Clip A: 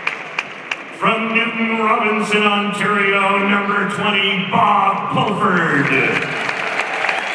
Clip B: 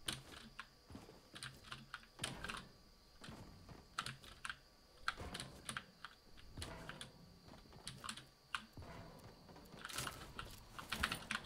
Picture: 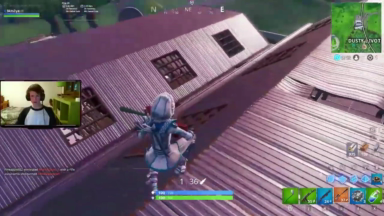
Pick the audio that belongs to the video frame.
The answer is B